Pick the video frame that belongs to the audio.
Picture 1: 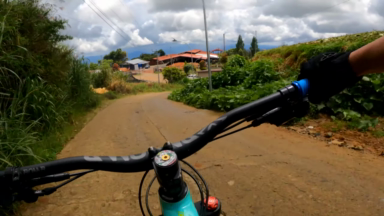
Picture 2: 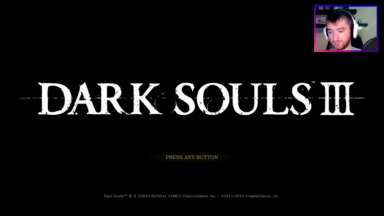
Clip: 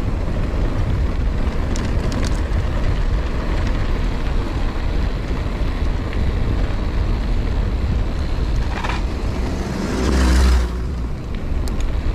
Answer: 1